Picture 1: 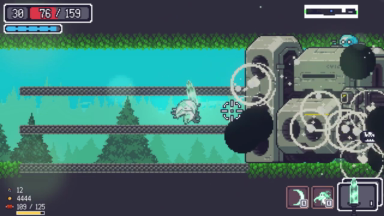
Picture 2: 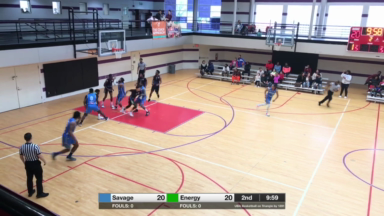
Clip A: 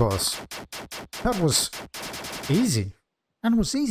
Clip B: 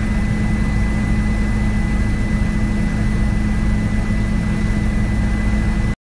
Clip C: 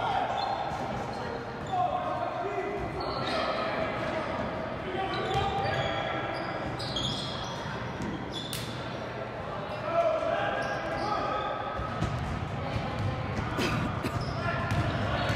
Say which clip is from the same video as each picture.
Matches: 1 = A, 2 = C